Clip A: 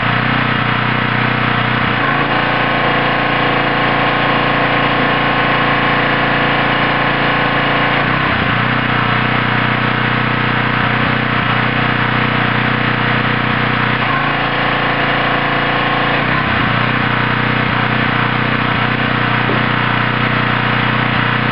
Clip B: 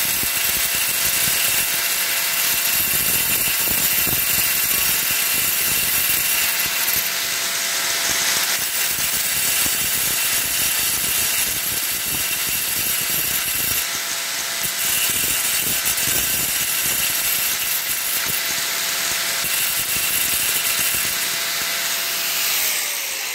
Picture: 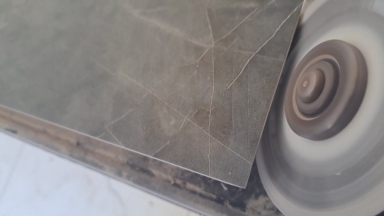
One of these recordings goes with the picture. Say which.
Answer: B